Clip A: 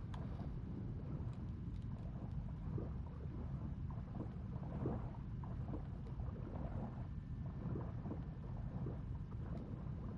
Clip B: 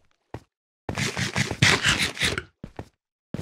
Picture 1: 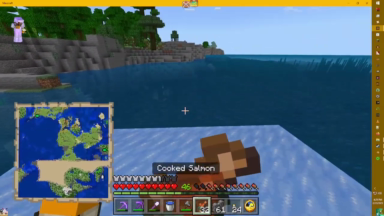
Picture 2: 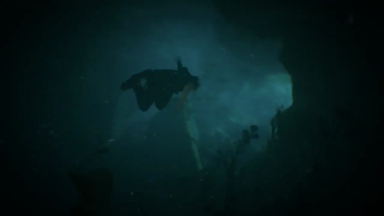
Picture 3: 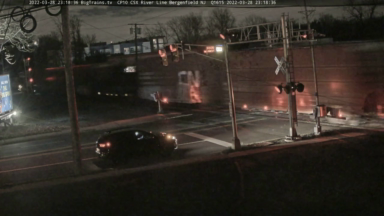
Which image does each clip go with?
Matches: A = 2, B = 1